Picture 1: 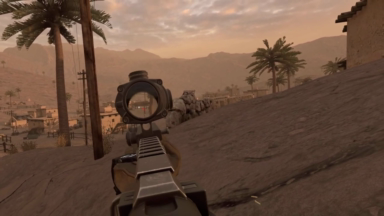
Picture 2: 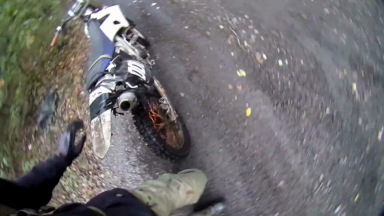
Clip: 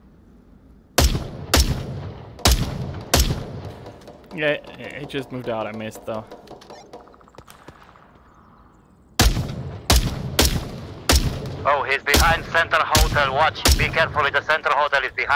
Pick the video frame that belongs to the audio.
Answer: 1